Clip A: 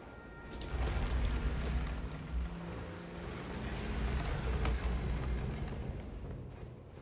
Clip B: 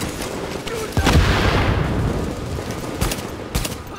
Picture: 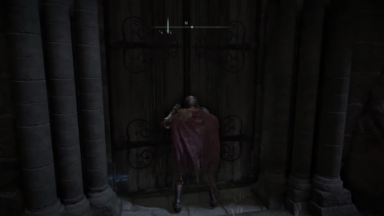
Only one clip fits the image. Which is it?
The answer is A